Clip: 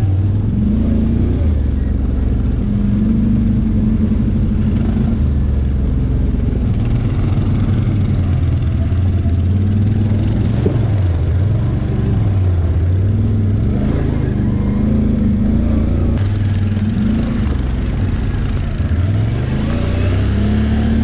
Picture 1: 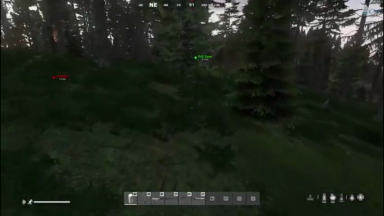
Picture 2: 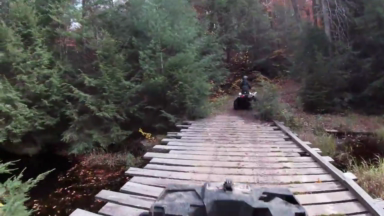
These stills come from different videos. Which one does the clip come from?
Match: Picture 2